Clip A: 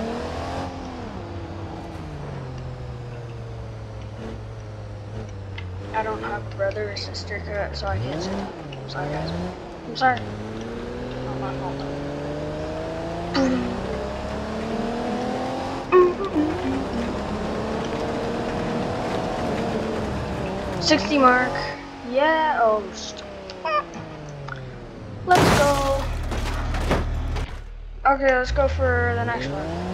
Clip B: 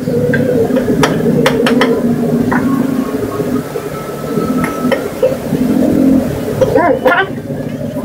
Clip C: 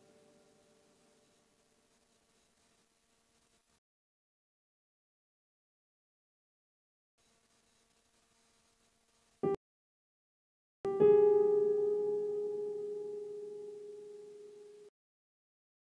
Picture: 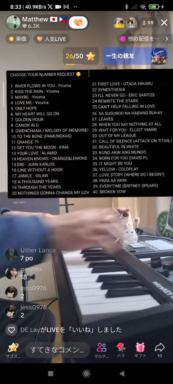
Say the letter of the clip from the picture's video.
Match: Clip C